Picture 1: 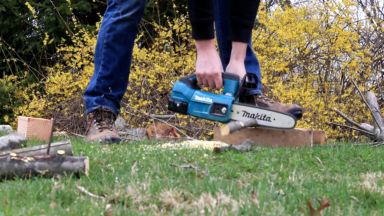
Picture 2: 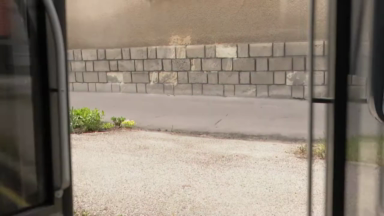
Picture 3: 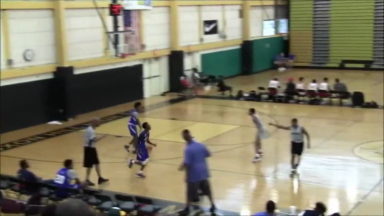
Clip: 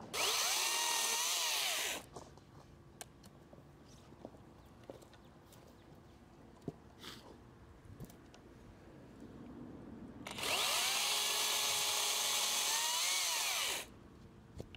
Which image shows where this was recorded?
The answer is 1